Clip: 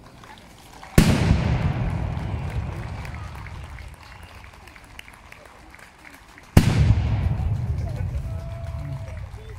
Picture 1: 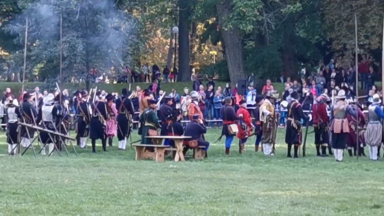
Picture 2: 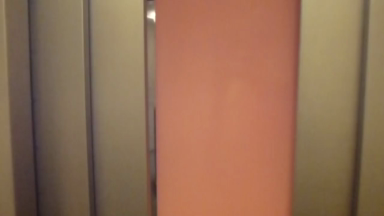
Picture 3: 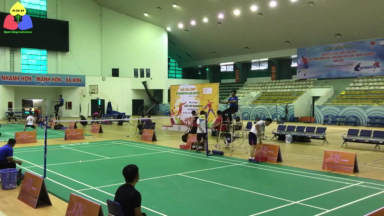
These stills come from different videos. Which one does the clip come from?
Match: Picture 1